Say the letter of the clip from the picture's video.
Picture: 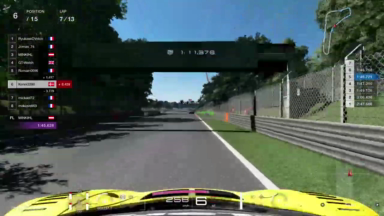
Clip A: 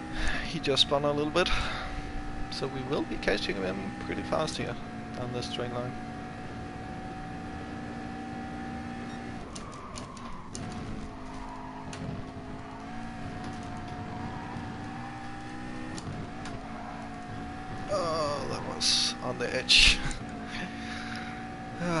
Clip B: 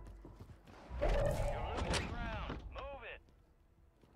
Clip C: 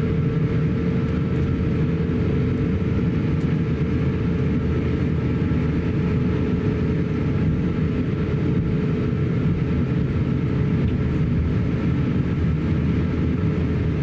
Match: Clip A